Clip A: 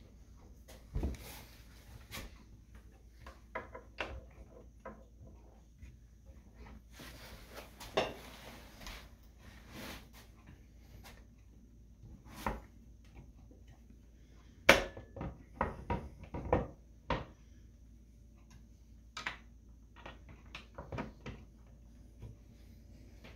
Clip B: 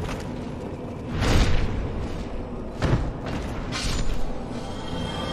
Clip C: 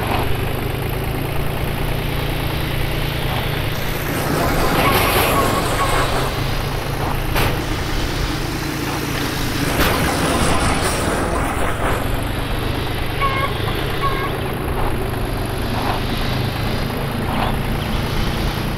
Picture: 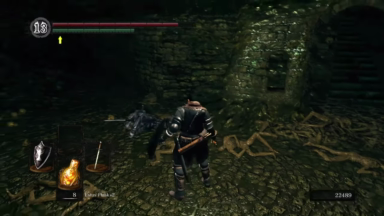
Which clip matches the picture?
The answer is B